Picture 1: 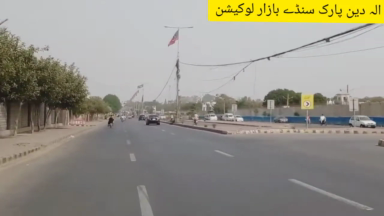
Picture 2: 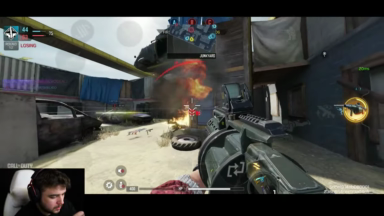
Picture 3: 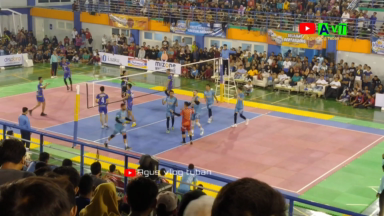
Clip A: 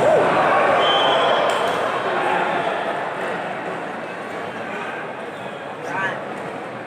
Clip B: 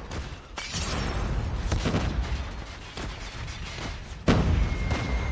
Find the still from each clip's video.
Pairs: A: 3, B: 2